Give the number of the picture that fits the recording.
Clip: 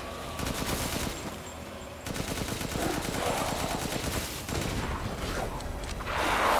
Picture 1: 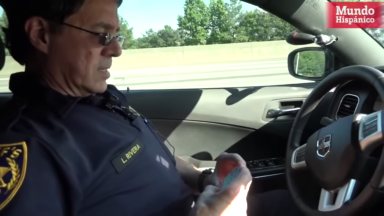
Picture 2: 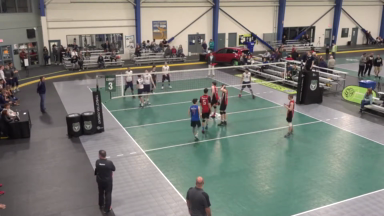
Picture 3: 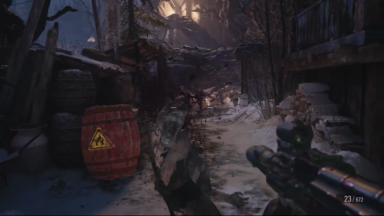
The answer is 3